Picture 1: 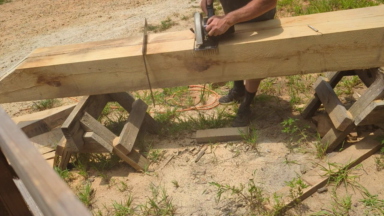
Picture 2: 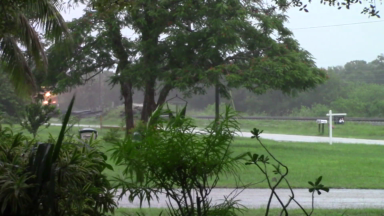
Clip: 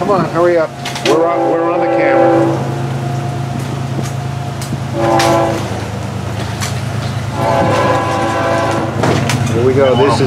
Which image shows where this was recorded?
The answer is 2